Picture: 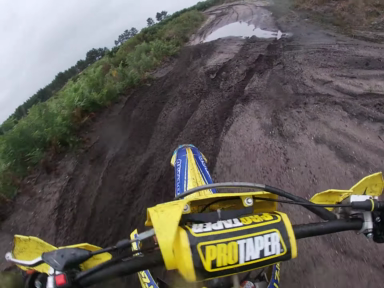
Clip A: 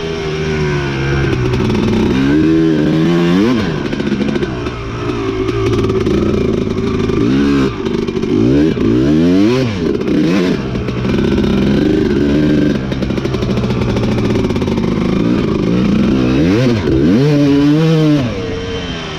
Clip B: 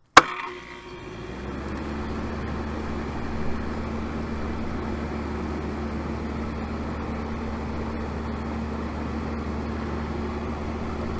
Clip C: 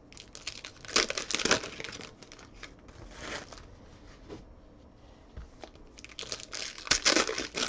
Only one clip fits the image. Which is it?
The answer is A